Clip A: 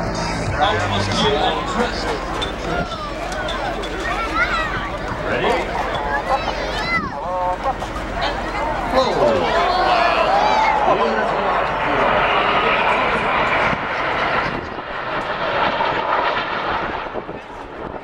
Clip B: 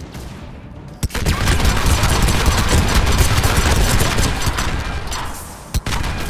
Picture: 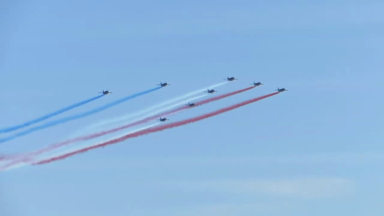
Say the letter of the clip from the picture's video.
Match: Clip A